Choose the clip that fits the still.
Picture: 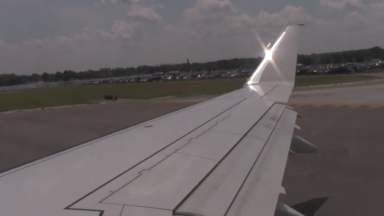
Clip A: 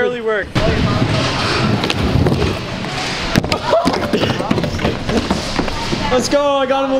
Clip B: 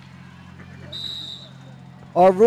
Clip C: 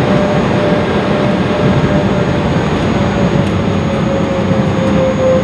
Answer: C